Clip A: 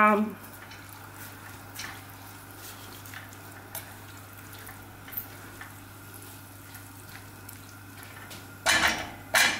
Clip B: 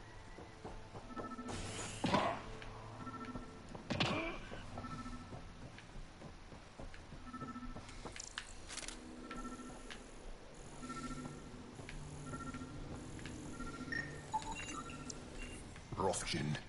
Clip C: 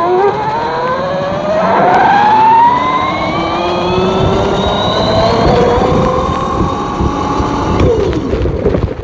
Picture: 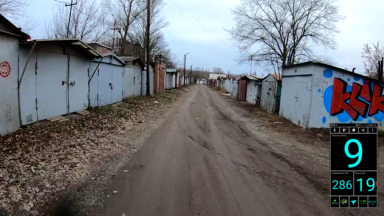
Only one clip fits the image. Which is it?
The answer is C